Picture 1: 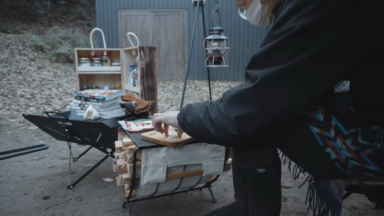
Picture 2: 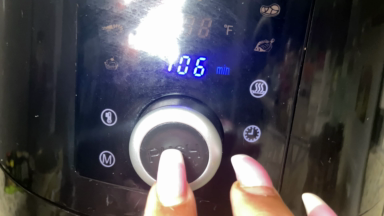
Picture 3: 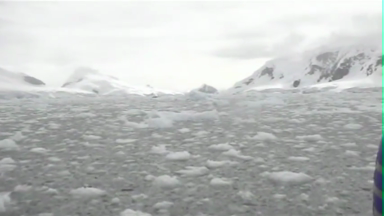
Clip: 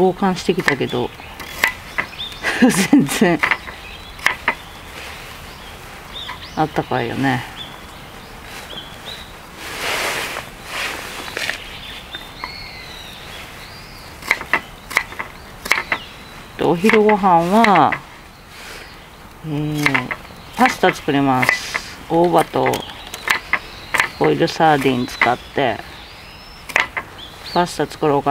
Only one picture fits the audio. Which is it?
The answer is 1